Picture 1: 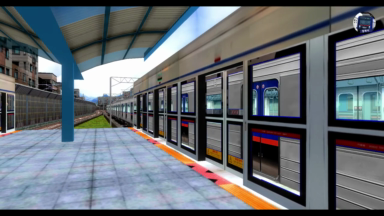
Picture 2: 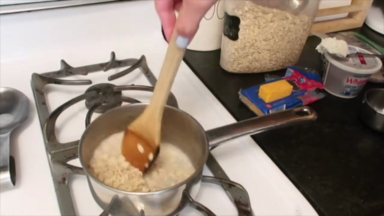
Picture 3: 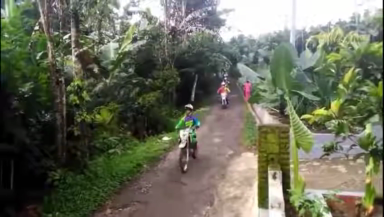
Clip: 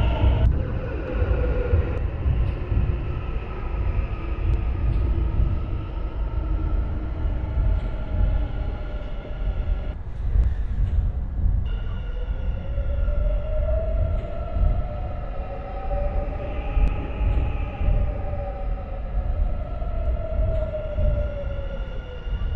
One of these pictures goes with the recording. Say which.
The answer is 1